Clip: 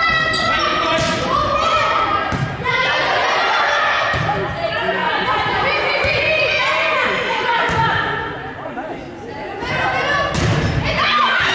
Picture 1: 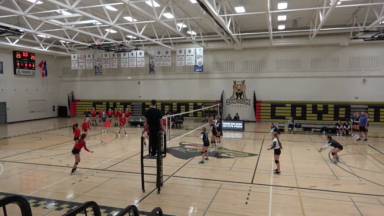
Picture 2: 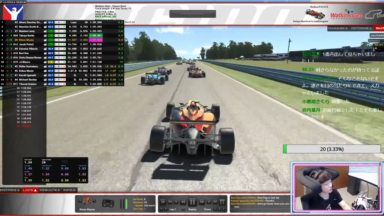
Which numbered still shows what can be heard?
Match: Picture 1